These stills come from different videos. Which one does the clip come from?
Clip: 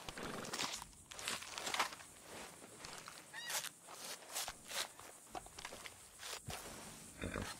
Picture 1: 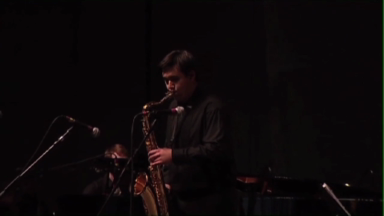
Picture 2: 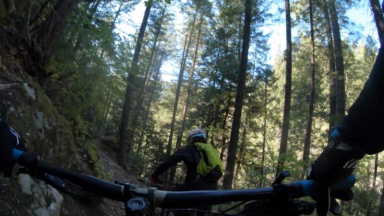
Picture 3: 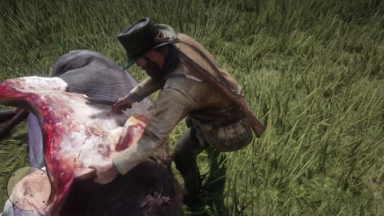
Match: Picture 3